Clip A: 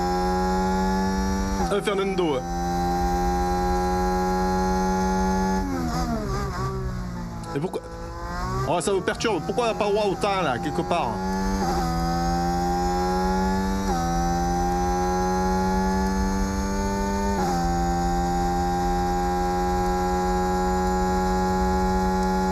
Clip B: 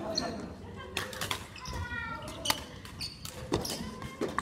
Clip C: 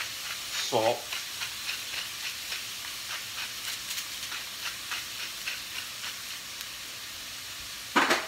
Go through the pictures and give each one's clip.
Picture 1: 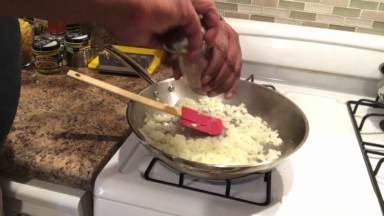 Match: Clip C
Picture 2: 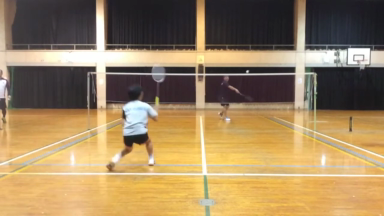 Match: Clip B